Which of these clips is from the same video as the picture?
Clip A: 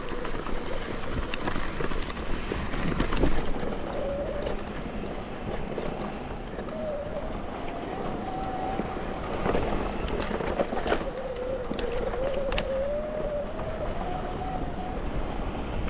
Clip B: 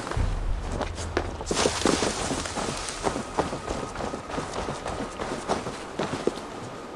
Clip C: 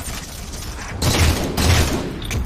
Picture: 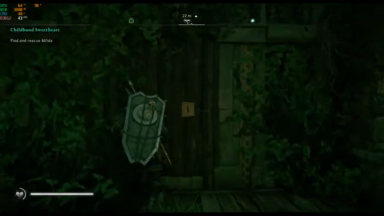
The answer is B